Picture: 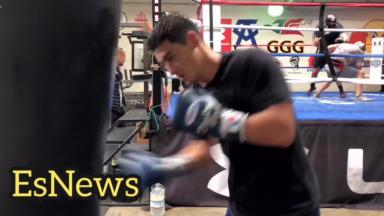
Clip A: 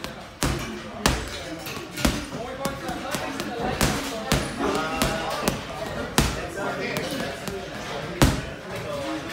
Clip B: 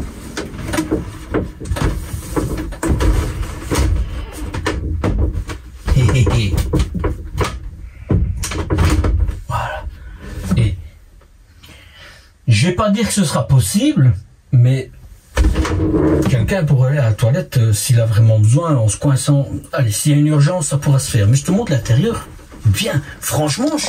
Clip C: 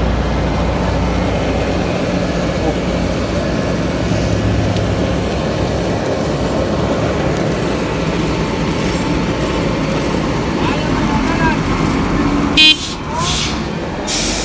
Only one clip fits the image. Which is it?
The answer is A